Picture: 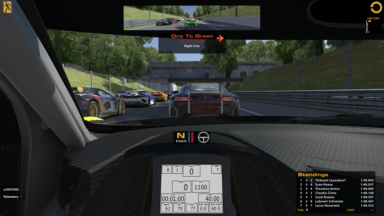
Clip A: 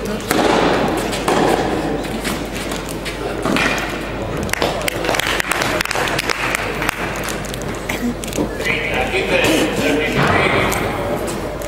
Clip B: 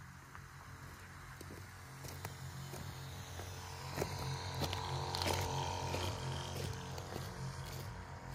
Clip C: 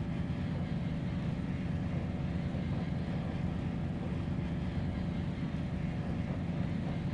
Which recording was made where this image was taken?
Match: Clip C